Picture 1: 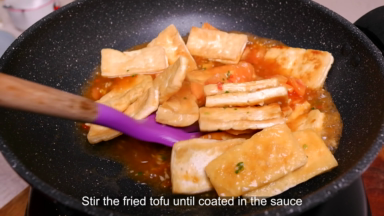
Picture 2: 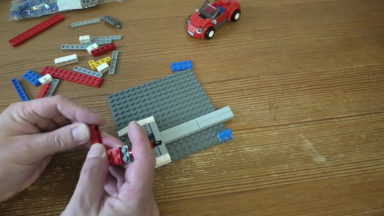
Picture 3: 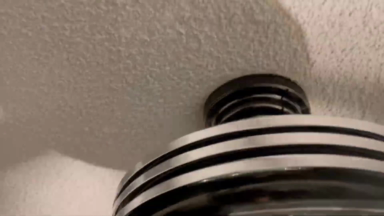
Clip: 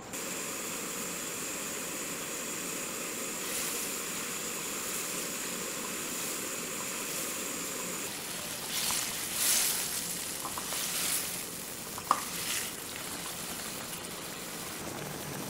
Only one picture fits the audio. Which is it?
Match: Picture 1